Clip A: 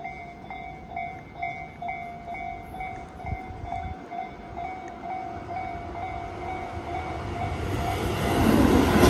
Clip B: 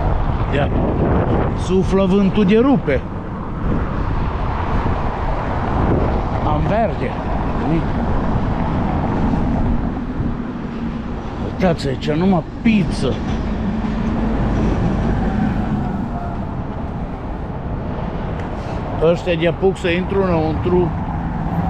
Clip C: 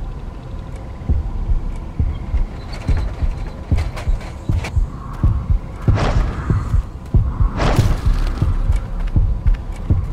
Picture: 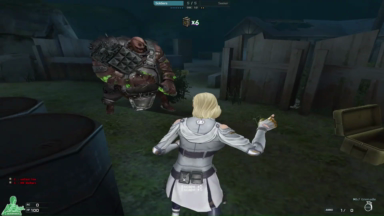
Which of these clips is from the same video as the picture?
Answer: C